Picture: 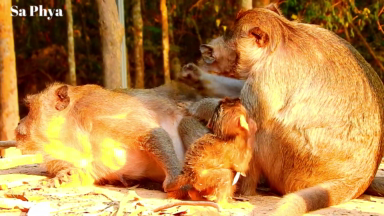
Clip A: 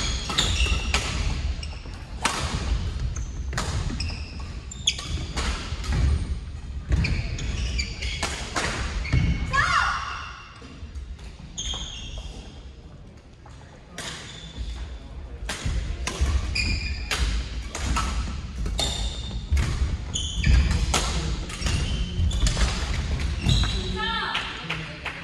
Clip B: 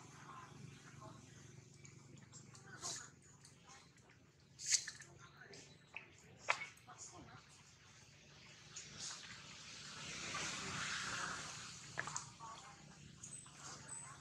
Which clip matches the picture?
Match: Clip B